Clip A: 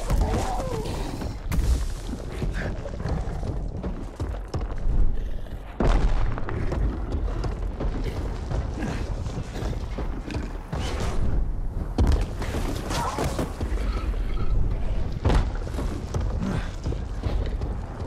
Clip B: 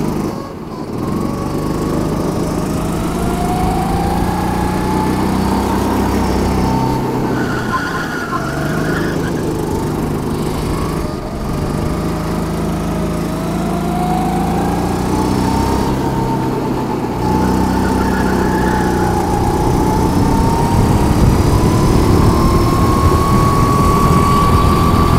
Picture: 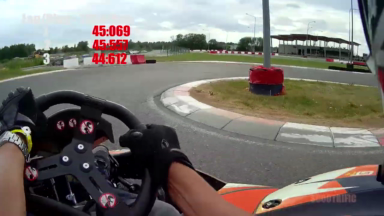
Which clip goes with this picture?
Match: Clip B